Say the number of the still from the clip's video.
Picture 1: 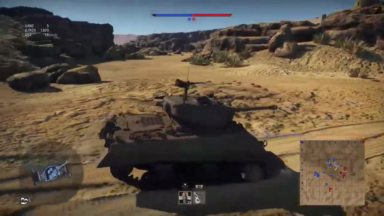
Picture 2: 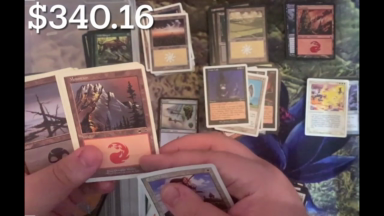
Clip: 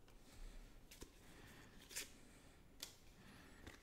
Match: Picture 2